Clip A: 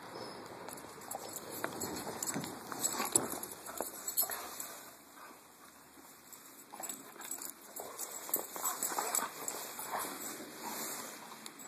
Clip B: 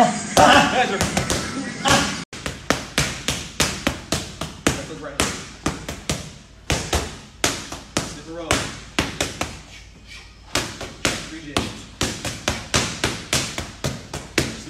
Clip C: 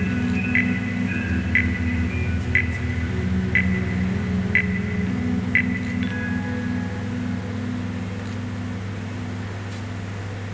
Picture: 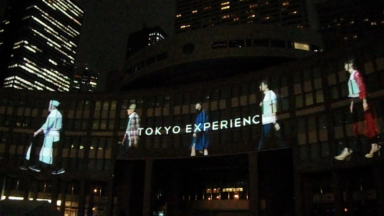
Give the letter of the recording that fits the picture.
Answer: C